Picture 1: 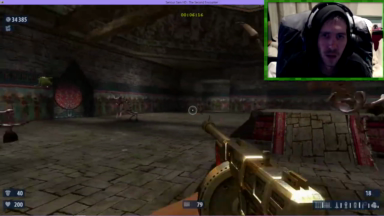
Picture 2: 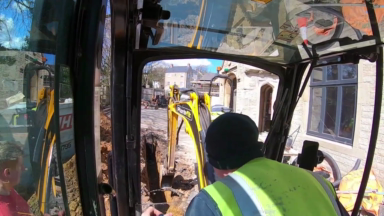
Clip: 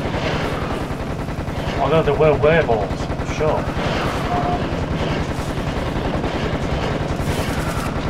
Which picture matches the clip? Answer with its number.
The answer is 1